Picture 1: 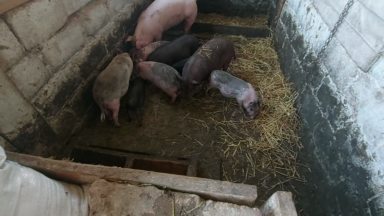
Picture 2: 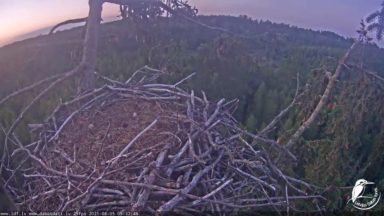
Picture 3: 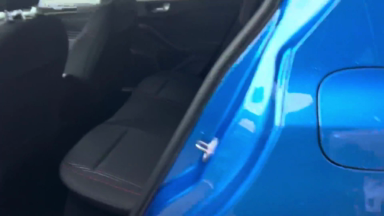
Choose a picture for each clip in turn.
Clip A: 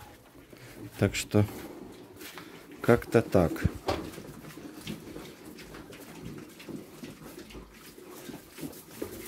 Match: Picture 1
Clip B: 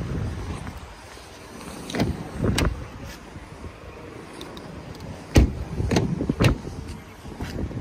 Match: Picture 3